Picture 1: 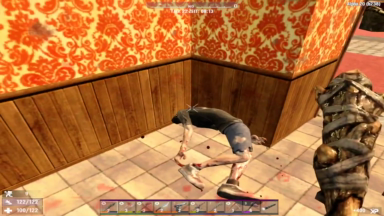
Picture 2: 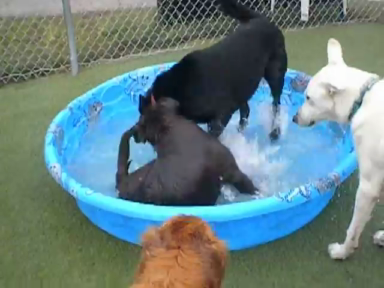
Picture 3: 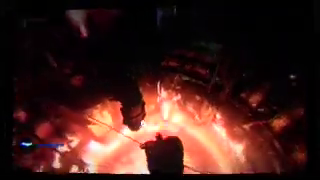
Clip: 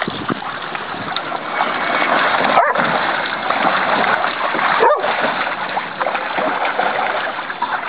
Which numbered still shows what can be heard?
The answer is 2